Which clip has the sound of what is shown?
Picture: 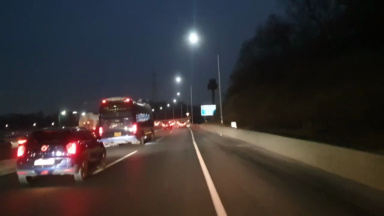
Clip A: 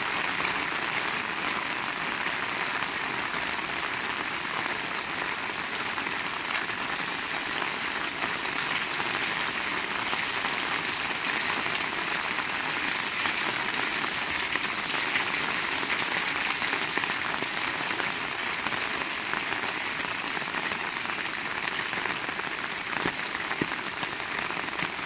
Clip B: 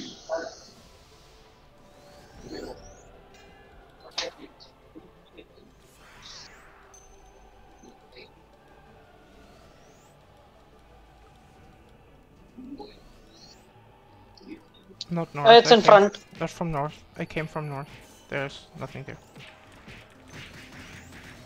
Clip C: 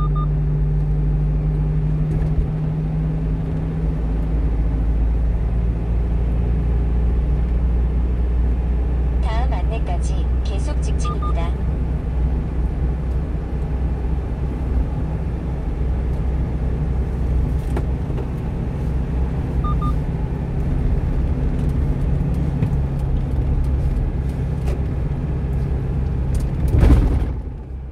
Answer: C